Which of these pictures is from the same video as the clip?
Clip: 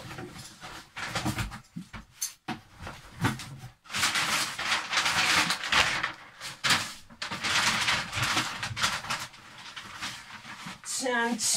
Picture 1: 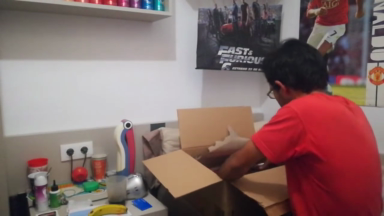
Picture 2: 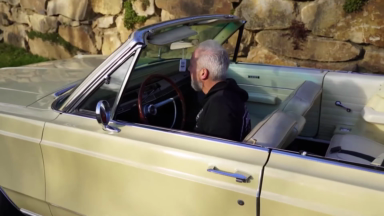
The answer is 1